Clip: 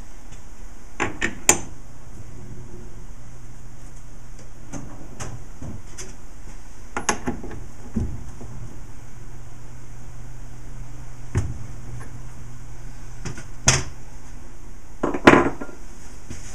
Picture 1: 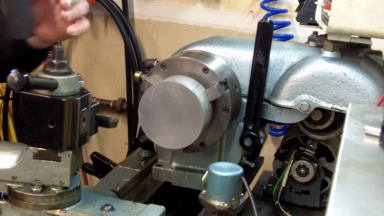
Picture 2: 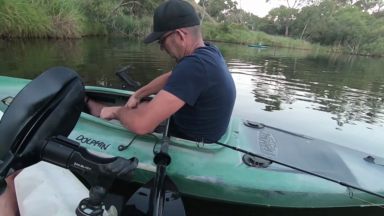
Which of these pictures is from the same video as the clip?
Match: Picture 1